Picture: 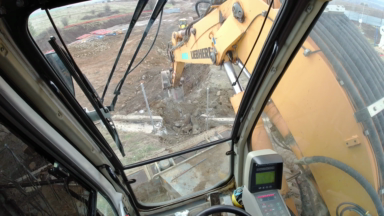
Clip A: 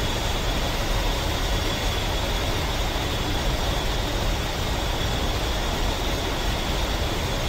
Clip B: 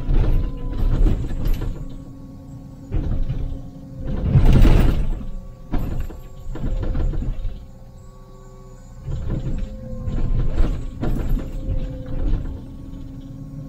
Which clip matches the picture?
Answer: B